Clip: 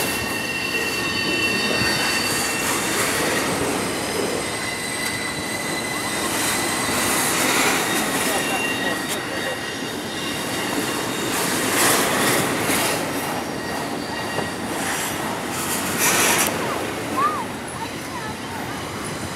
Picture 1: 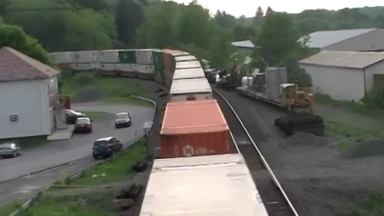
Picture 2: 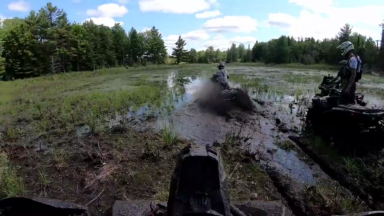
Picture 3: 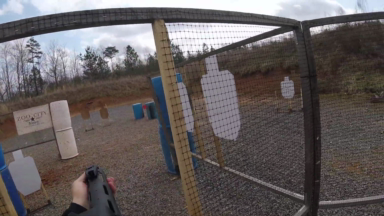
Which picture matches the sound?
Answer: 1